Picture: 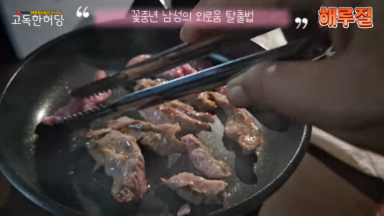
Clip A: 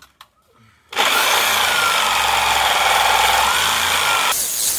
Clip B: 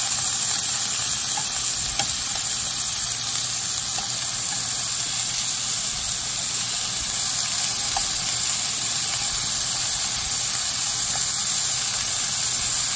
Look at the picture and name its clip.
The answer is B